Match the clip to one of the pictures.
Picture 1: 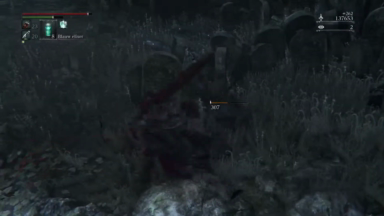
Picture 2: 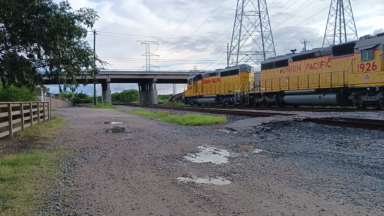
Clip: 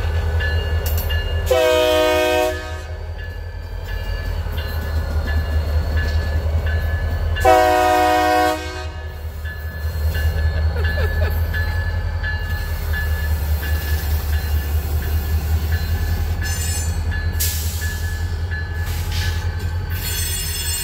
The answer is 2